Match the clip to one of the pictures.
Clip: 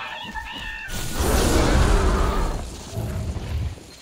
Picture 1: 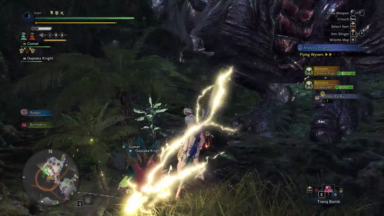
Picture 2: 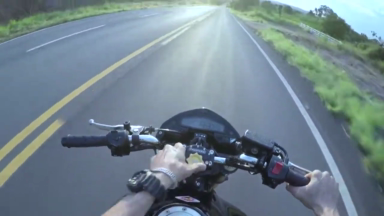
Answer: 1